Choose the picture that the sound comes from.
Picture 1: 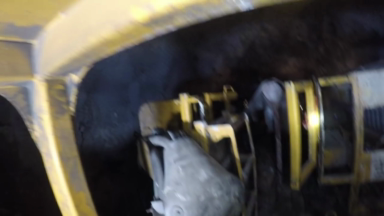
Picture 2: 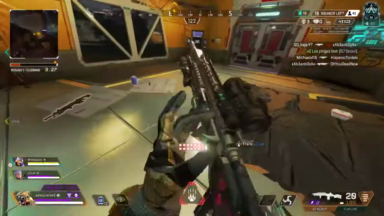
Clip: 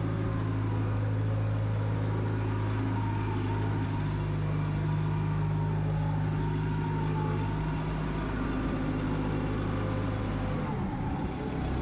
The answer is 1